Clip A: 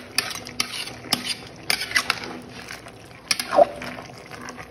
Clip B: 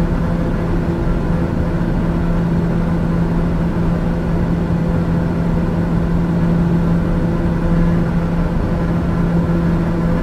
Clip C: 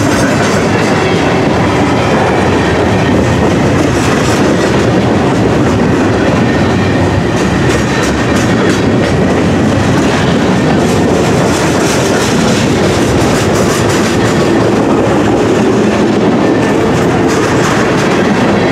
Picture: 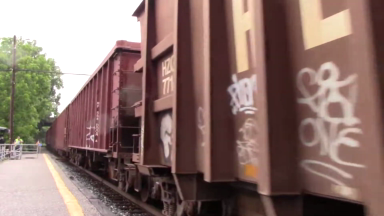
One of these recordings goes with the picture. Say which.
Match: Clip C